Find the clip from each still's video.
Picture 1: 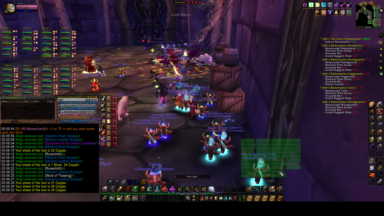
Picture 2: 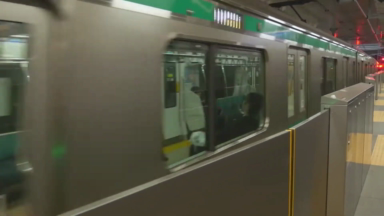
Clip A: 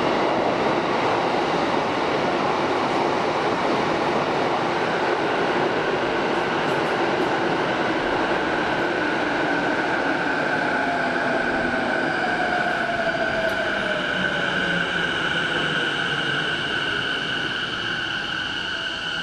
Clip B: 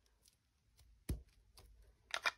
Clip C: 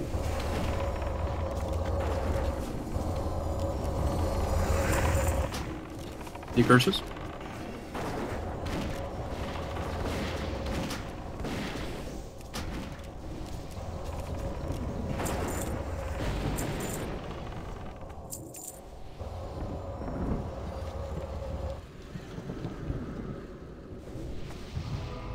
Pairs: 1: C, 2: A